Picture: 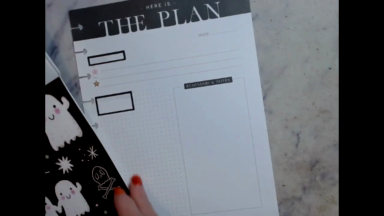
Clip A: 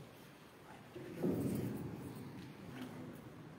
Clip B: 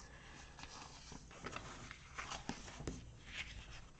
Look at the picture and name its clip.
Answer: B